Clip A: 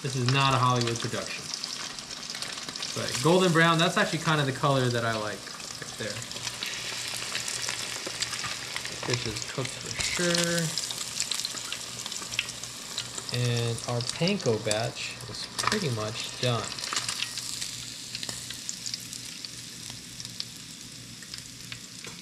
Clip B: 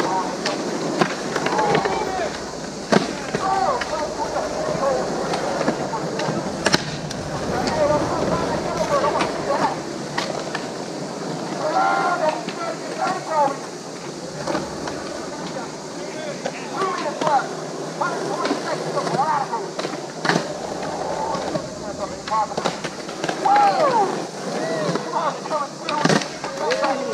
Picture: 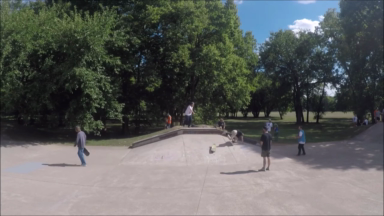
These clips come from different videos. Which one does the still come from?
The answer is B